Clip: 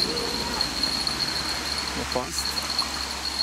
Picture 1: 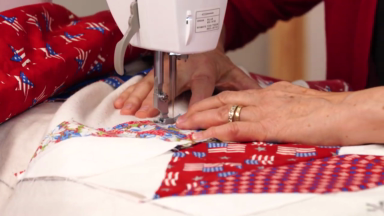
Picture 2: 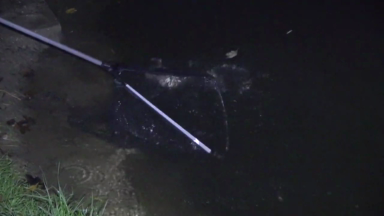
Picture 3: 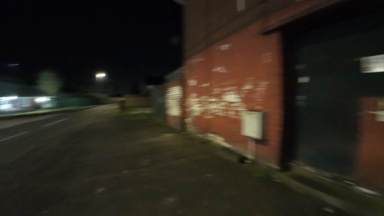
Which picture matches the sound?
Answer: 2